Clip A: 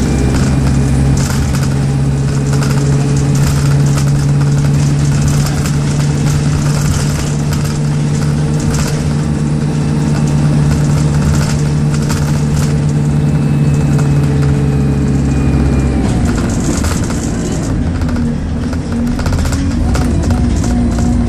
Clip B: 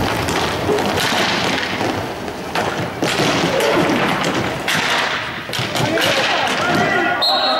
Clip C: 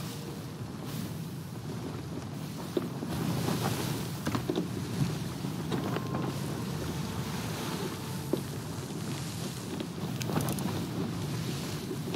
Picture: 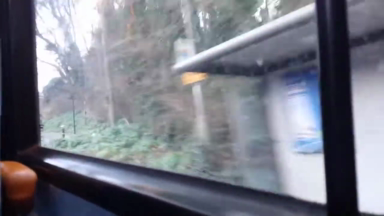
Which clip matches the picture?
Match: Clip A